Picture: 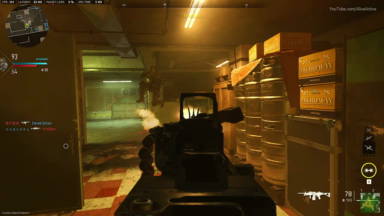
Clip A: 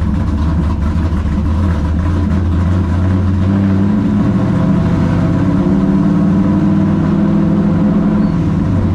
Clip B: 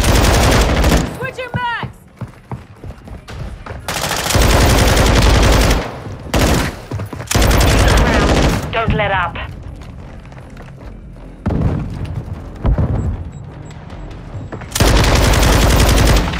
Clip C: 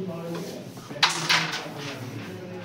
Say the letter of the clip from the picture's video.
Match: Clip B